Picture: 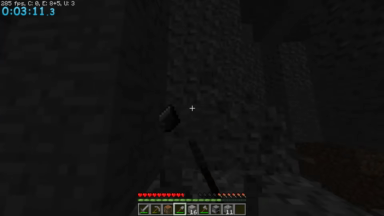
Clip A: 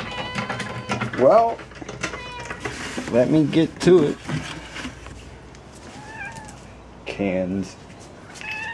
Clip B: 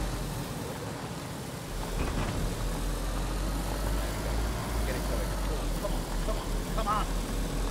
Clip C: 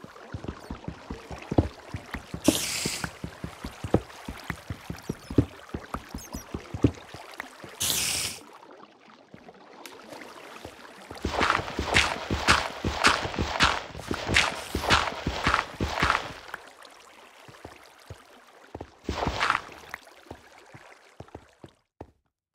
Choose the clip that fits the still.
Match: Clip C